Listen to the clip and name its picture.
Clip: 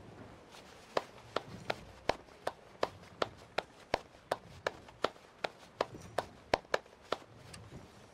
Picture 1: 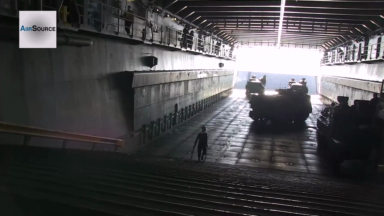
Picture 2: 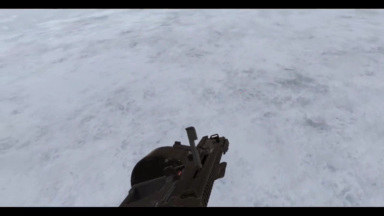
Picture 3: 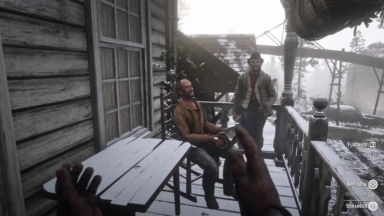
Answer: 3